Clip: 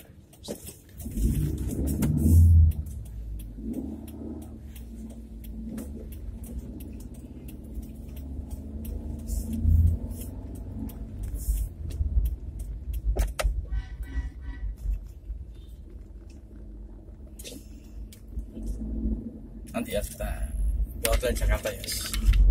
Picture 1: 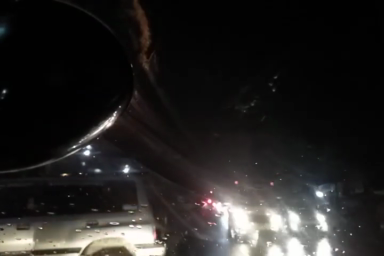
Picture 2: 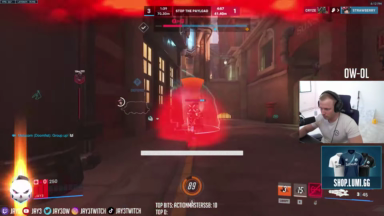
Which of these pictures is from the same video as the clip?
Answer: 1